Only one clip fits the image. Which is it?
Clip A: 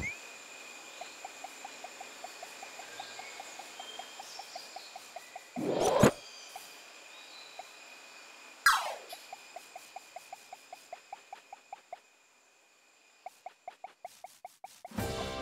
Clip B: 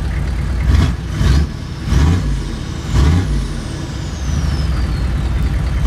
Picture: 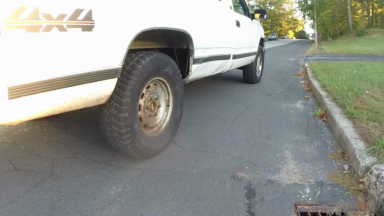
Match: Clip B